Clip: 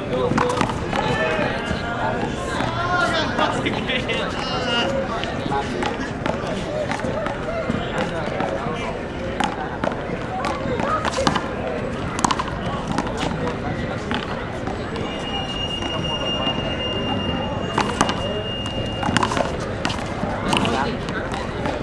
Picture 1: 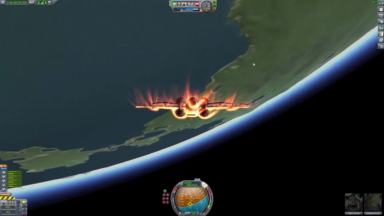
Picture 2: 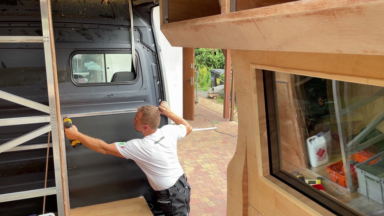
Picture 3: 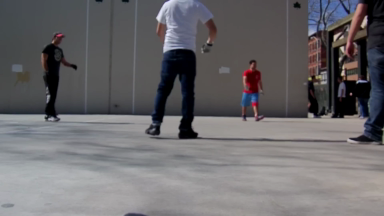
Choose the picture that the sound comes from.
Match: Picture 3